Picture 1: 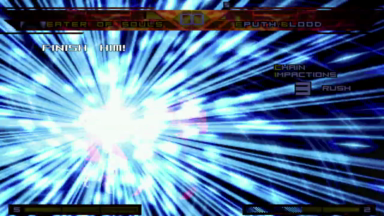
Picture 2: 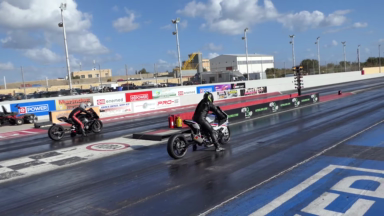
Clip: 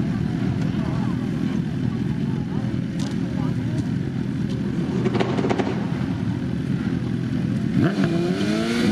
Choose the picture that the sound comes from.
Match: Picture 2